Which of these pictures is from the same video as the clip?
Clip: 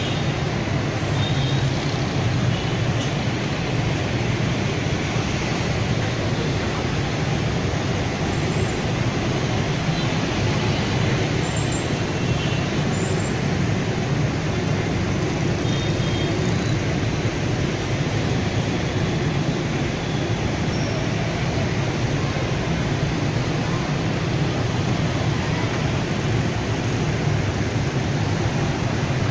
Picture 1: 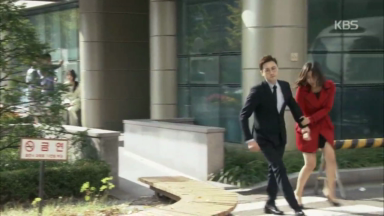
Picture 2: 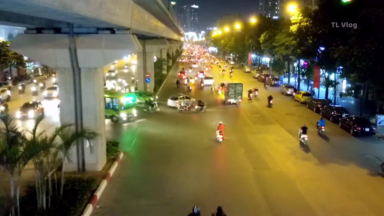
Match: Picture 2